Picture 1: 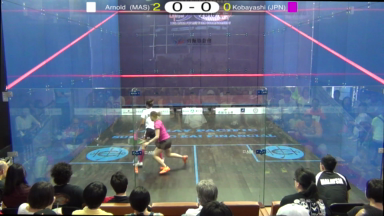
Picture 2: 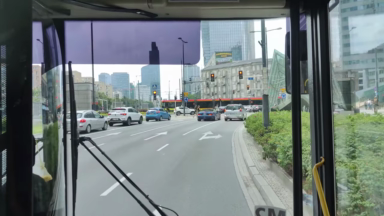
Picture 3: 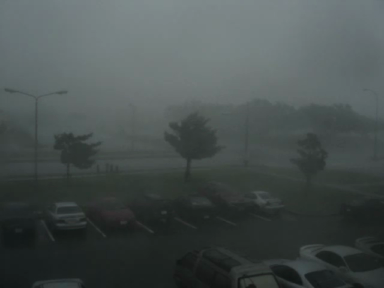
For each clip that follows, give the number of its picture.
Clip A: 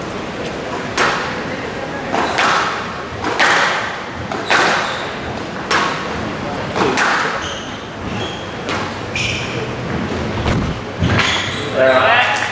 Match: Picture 1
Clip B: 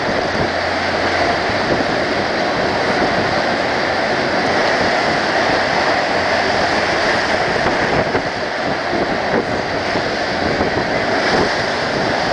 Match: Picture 3